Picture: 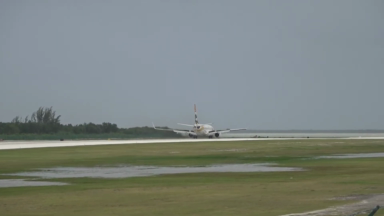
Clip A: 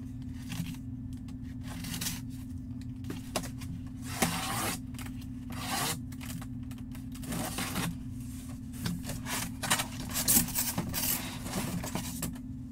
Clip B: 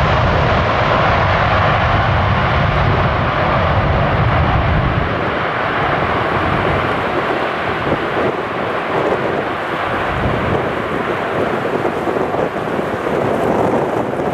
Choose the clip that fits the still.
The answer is B